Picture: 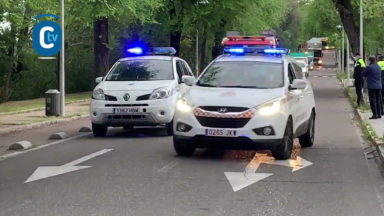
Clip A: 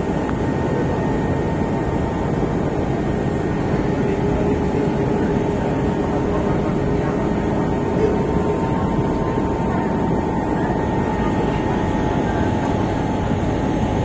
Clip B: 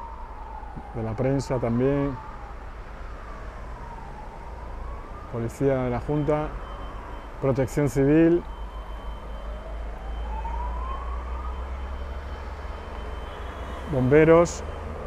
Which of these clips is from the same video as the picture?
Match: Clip B